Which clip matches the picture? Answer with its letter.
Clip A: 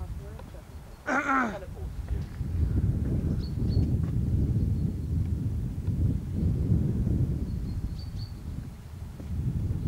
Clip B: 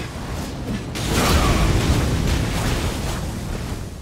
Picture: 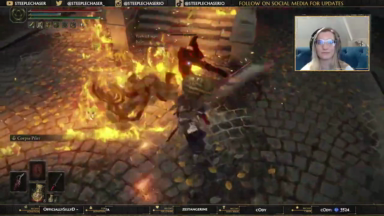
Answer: B